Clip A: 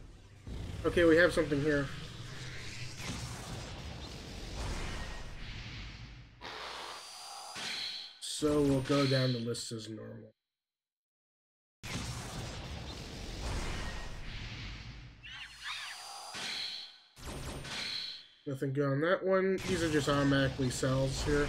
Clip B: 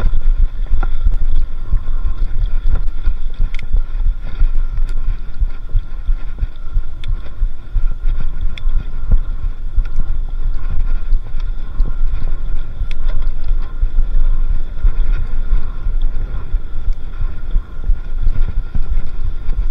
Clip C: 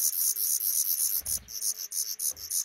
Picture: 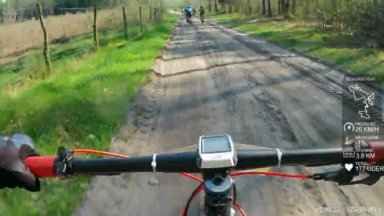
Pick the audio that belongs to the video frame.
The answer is B